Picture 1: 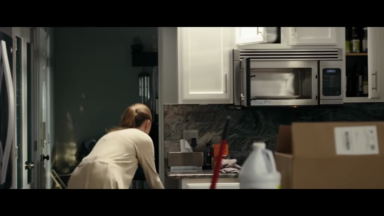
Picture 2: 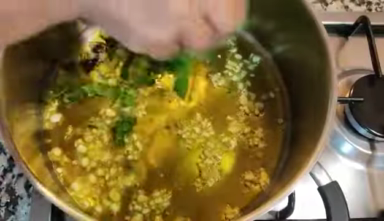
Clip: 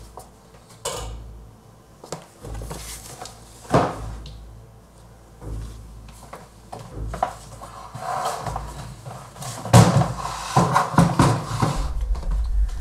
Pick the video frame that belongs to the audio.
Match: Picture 1